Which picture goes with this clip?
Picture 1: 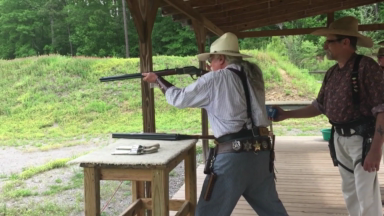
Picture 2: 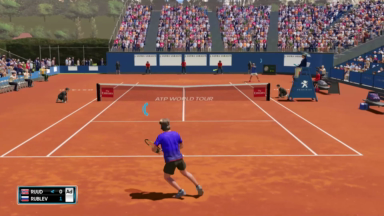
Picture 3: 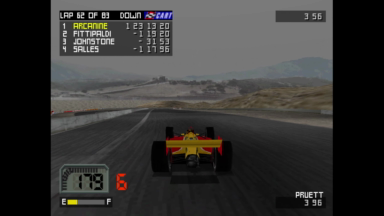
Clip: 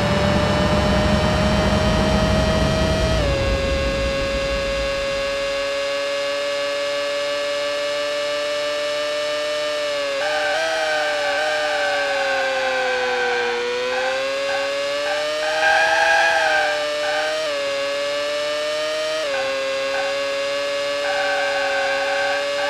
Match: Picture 3